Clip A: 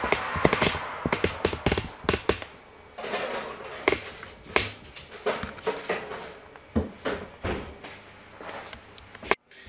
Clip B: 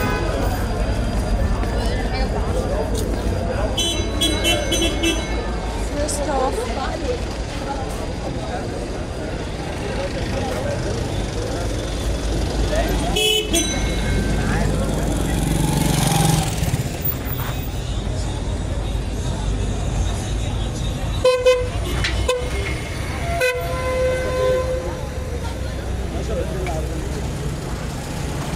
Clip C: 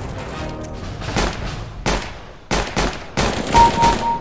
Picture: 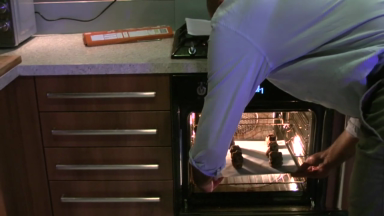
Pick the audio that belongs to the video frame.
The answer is A